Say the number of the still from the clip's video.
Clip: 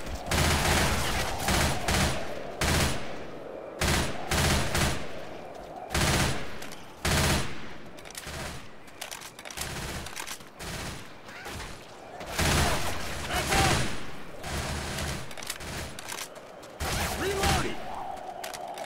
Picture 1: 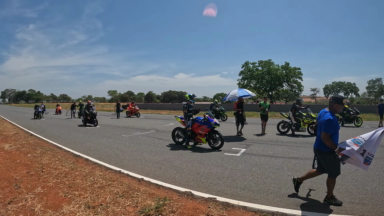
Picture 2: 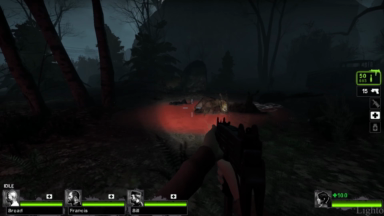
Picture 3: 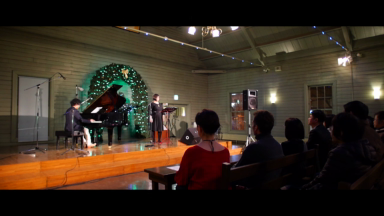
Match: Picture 2